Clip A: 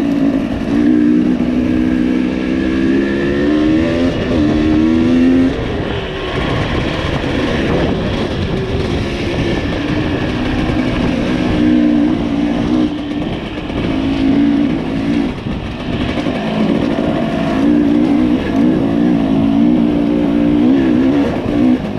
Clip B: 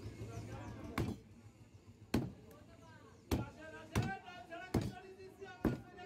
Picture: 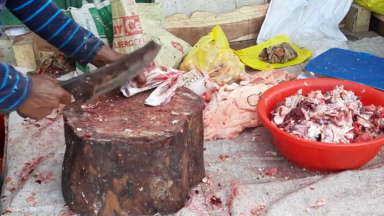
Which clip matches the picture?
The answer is B